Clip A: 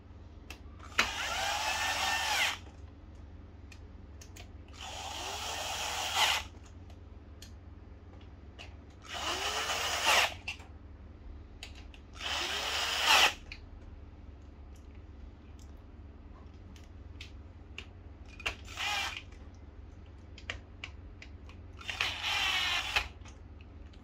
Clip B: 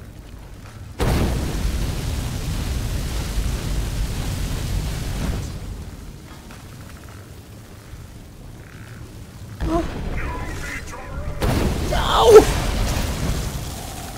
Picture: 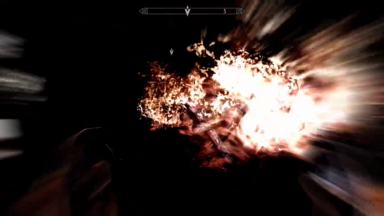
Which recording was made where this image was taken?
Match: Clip B